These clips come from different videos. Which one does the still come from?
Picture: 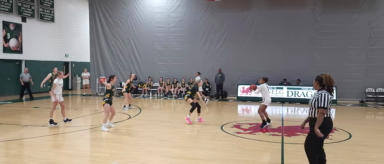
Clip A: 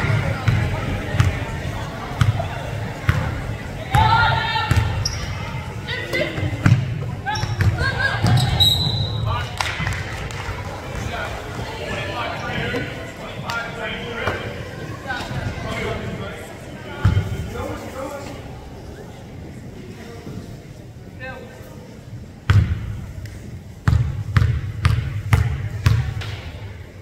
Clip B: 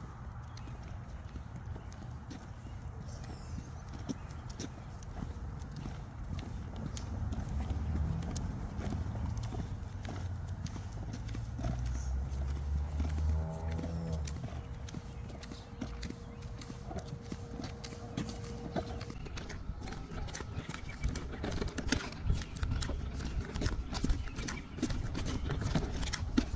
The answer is A